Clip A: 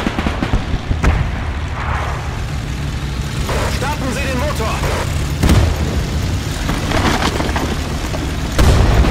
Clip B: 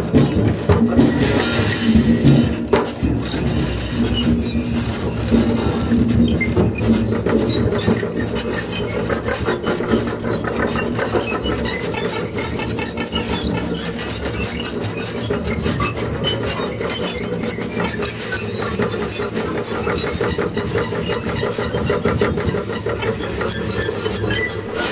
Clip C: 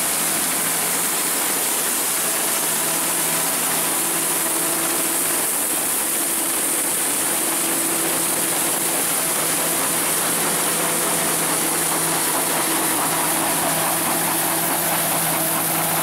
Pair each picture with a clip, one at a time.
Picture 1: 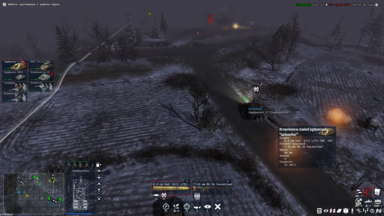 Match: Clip A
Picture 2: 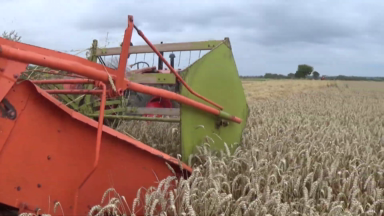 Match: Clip C